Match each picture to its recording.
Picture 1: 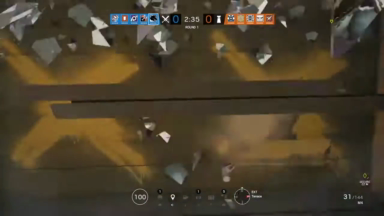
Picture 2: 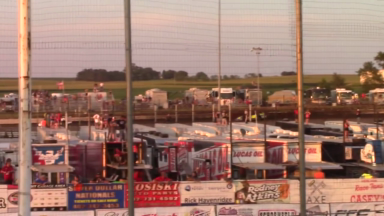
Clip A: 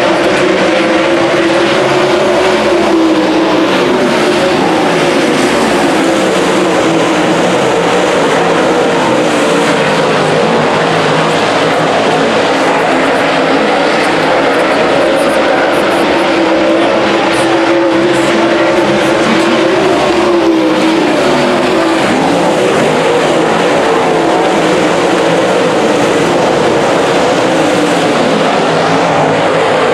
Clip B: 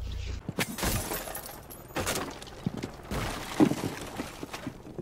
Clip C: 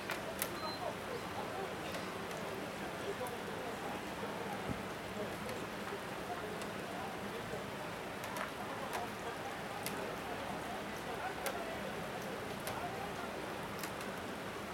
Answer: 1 B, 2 A